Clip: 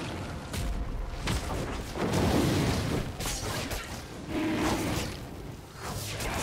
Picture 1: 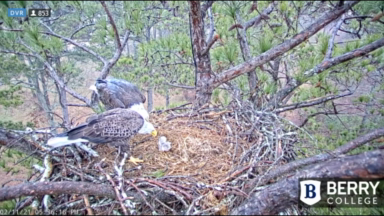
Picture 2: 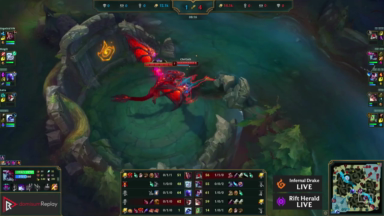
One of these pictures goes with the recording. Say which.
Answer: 2